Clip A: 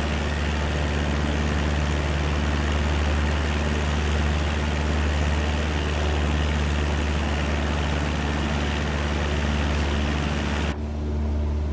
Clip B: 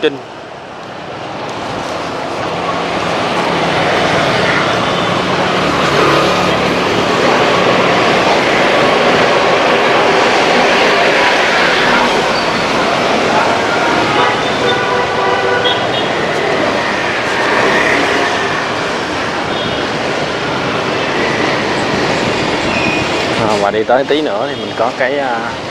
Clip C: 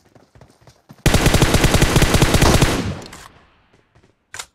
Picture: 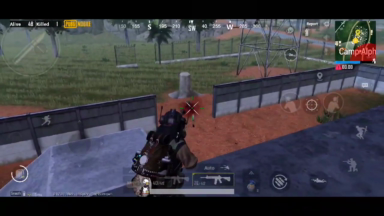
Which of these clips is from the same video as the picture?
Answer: C